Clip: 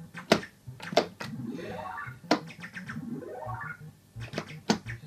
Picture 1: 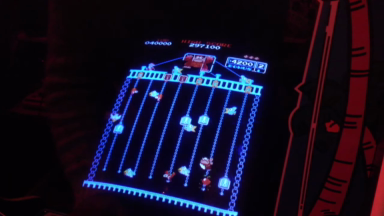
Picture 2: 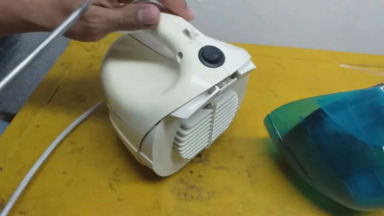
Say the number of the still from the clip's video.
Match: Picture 1